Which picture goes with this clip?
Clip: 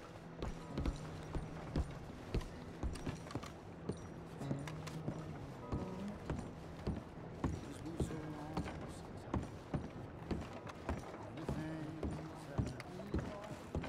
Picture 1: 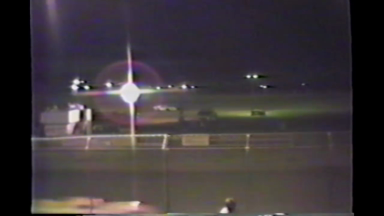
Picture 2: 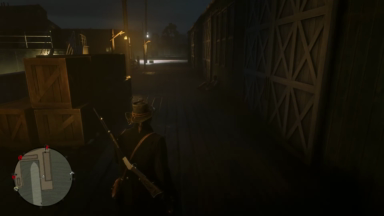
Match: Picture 2